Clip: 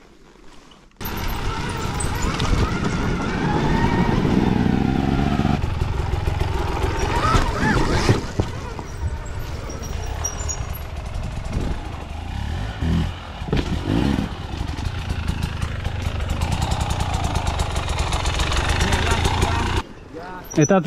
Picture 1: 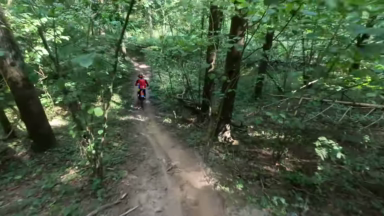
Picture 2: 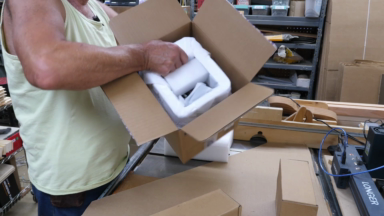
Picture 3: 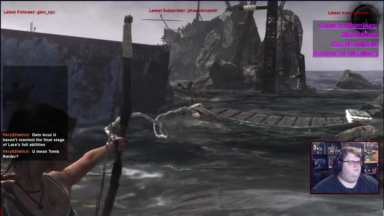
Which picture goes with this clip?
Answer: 1